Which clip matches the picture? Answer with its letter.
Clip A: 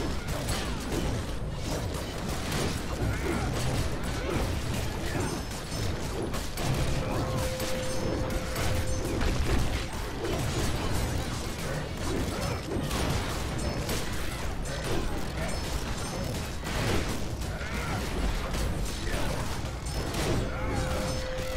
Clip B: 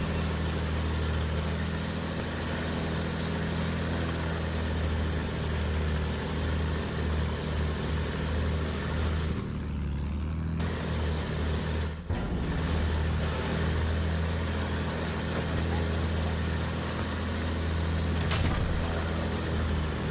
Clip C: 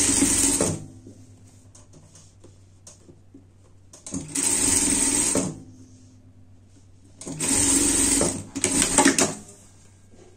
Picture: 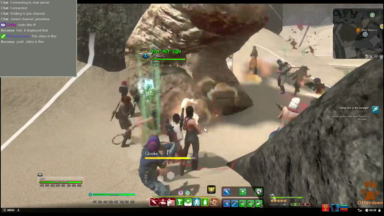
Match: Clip A